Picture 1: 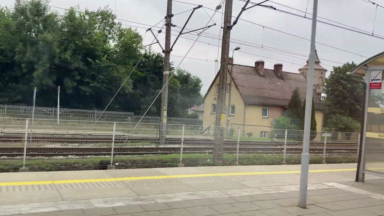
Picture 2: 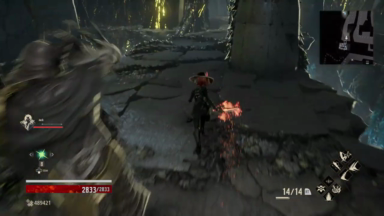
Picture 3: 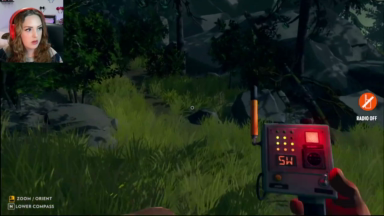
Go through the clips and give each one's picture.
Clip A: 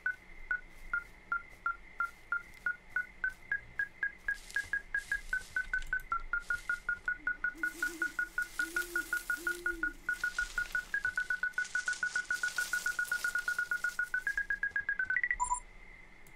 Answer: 3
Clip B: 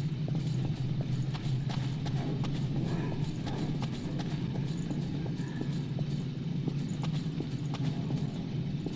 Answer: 2